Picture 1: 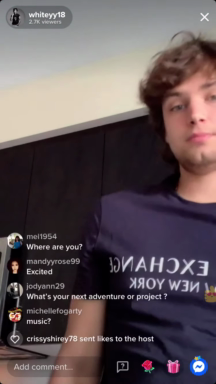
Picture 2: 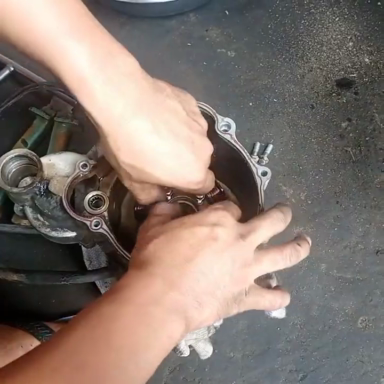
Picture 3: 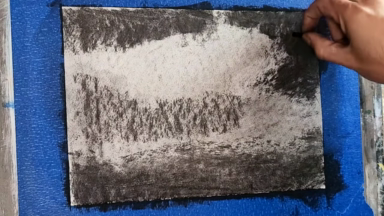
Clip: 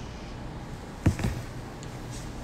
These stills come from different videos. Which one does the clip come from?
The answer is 1